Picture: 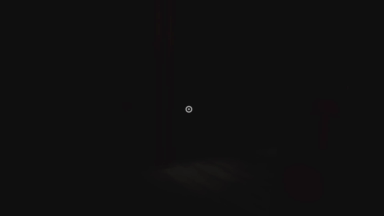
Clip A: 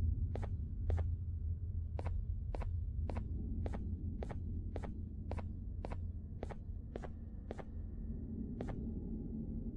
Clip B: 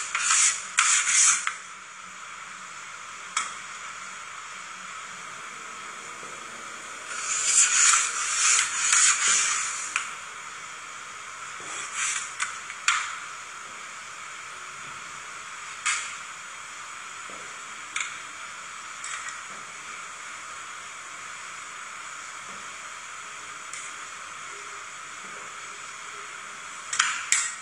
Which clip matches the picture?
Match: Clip A